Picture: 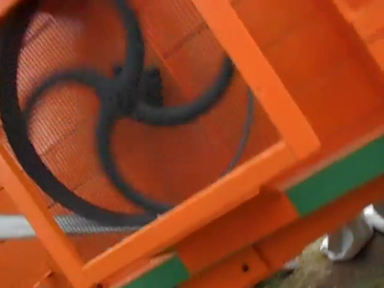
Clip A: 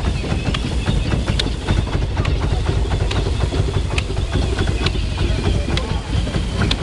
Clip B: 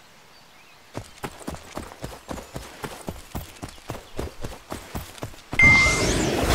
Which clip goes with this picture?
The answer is A